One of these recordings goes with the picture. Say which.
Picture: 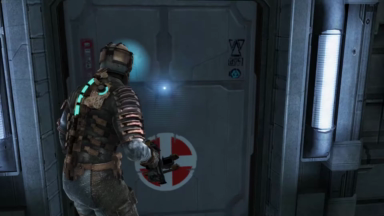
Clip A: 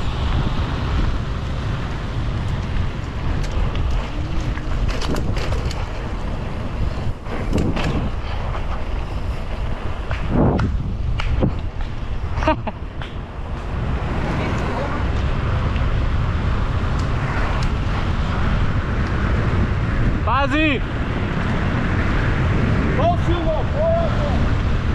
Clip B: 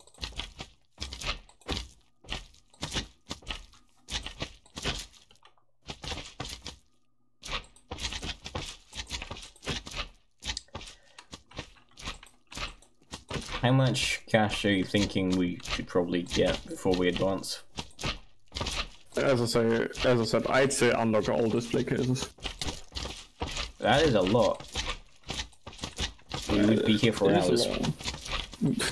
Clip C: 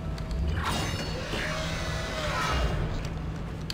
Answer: C